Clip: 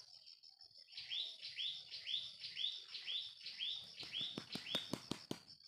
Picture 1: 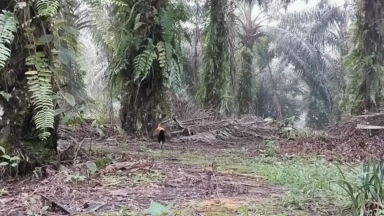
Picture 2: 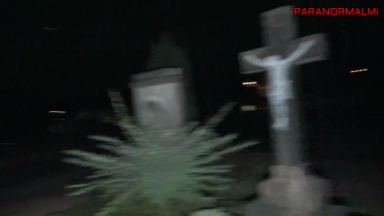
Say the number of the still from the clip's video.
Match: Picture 1